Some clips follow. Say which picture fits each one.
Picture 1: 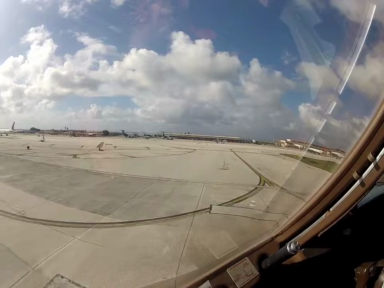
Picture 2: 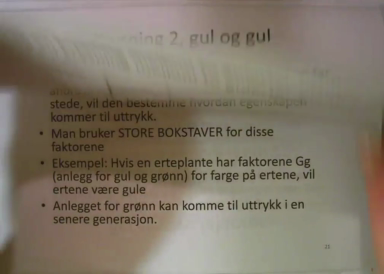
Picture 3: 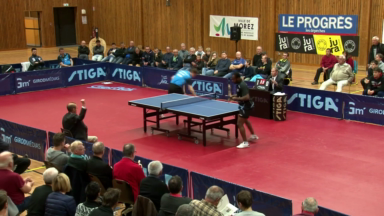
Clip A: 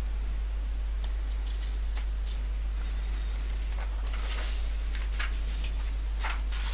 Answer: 2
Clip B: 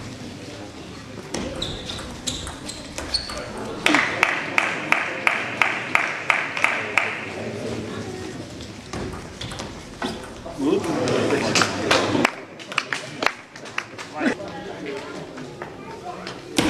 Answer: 3